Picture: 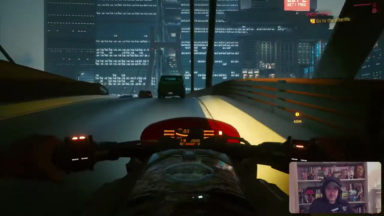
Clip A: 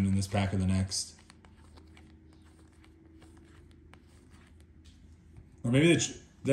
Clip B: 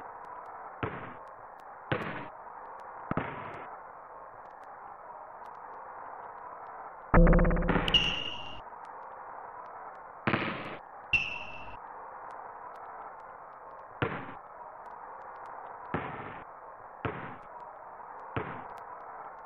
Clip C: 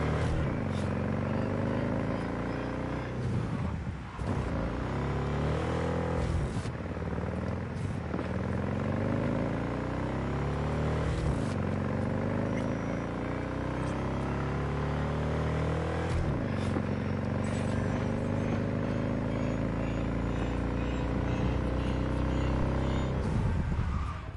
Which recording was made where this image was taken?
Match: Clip C